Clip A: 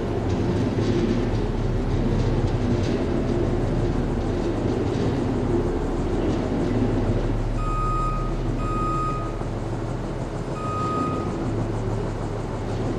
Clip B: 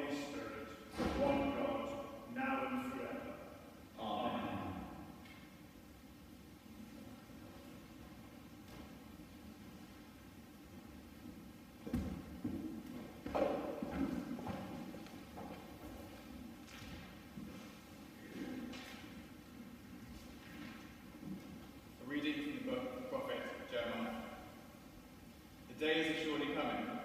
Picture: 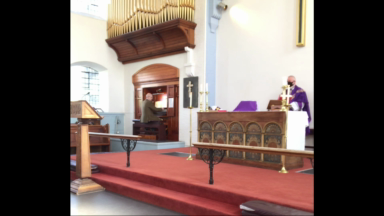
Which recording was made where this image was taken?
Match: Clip B